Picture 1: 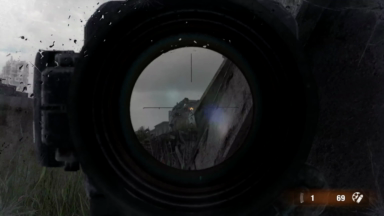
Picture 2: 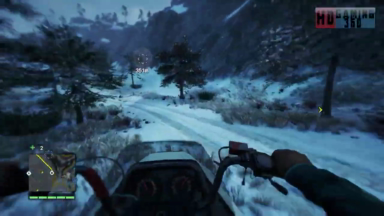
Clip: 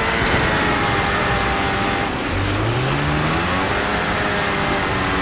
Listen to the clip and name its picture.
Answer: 2